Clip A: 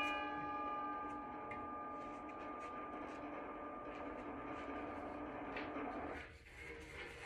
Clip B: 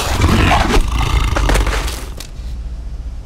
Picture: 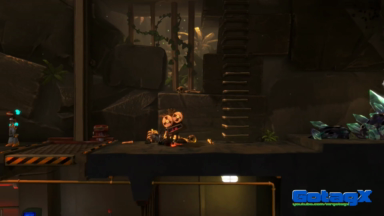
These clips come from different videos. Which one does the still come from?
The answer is B